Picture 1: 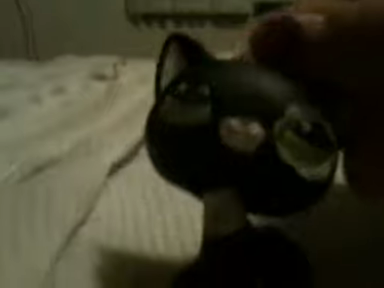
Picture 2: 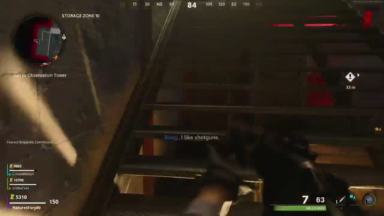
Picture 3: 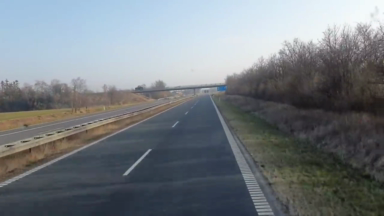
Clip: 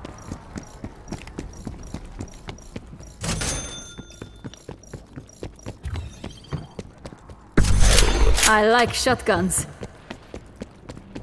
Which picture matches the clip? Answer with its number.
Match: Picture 2